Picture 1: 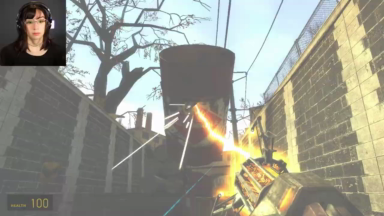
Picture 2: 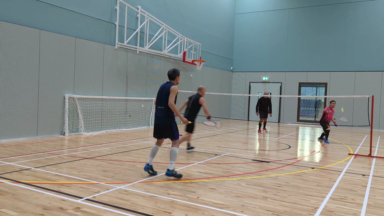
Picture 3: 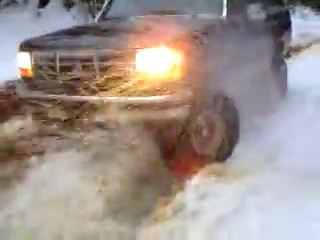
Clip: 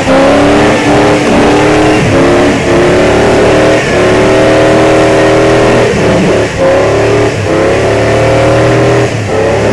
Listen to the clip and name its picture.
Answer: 3